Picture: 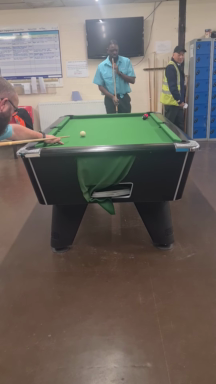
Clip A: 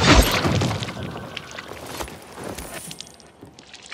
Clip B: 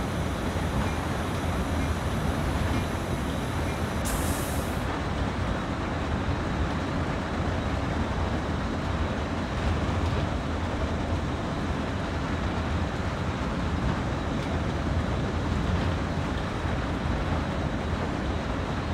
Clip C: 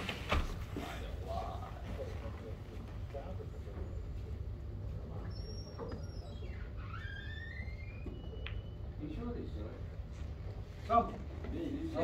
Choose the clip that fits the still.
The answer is C